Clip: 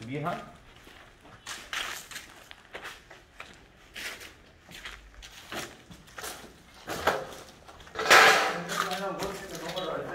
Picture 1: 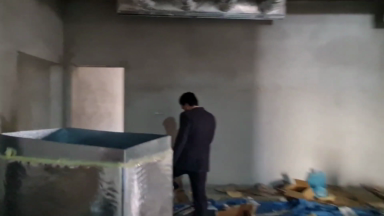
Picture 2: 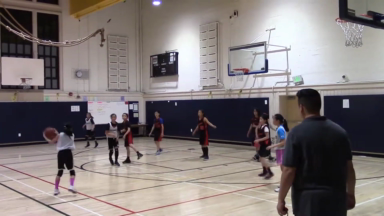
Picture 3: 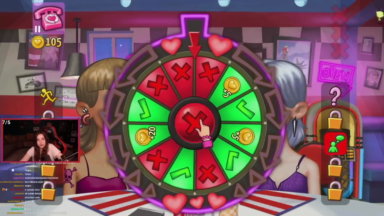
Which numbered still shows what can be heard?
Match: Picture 1